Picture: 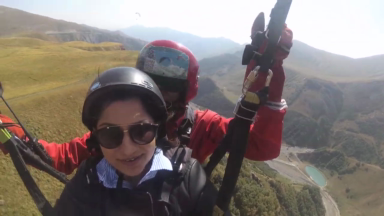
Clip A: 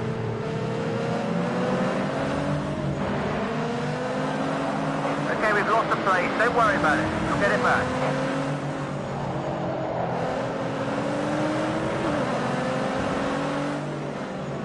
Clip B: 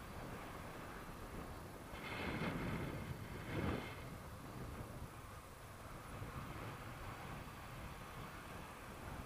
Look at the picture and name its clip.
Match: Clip B